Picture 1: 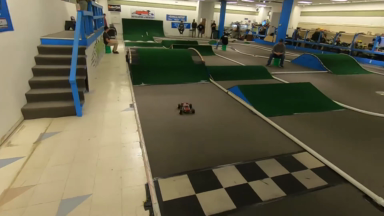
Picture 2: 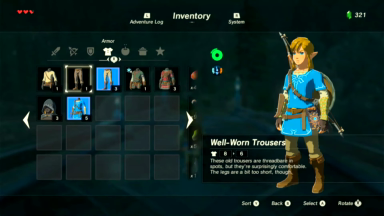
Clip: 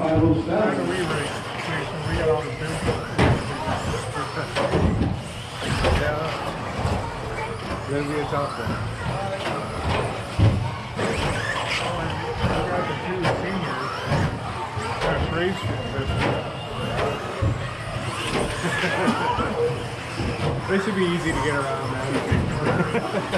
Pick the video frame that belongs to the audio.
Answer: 1